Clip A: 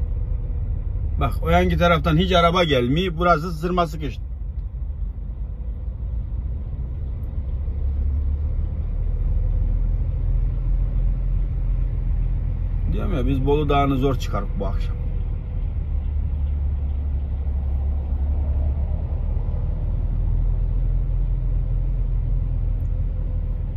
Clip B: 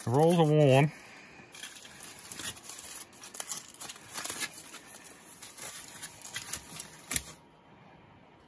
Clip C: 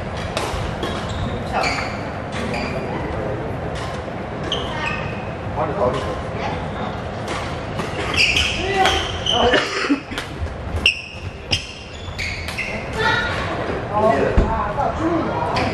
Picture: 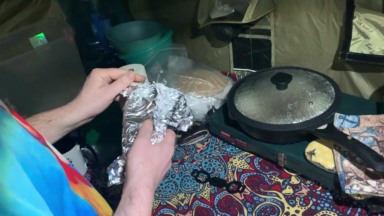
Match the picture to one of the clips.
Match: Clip B